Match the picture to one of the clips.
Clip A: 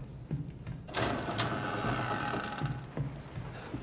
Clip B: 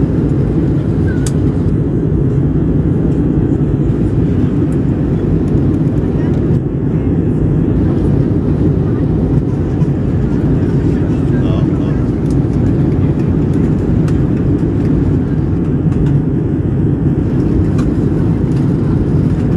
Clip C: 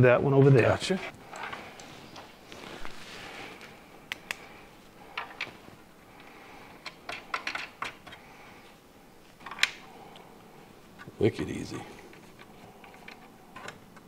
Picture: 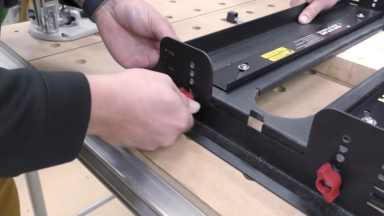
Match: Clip C